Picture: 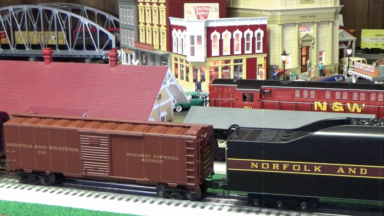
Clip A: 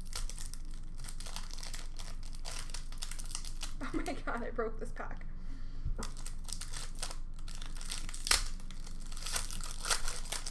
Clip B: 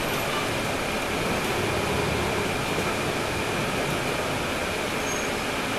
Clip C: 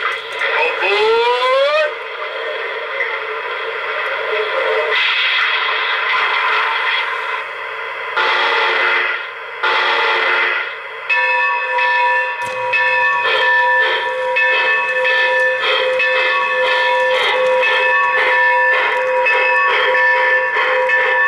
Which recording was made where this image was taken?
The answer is C